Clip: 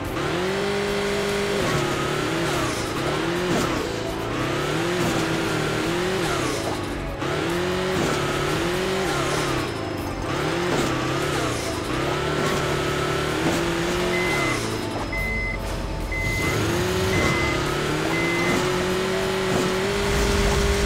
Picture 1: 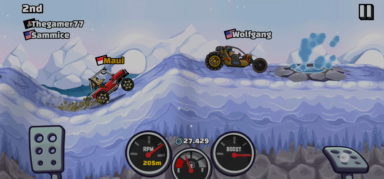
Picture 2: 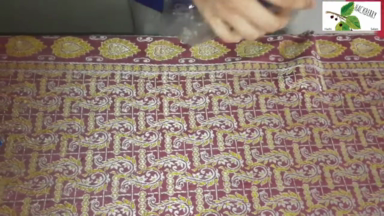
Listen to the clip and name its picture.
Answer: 1